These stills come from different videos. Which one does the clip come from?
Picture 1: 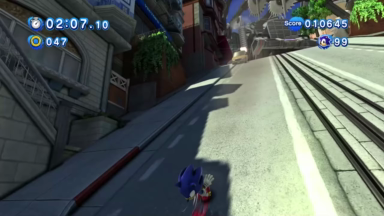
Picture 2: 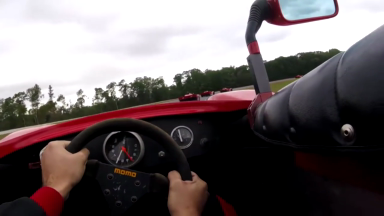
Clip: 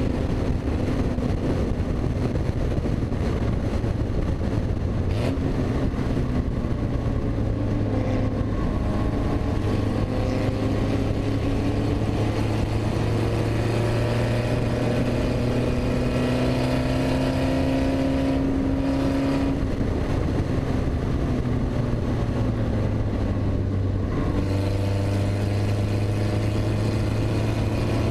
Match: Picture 2